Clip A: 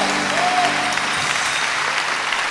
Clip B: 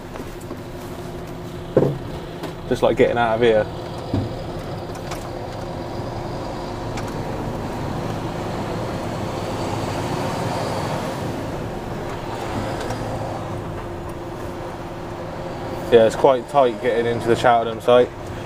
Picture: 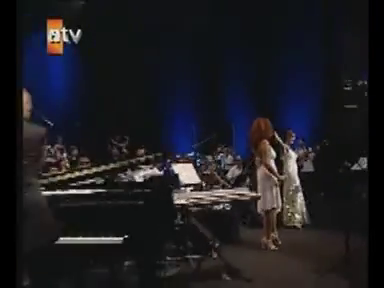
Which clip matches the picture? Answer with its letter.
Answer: A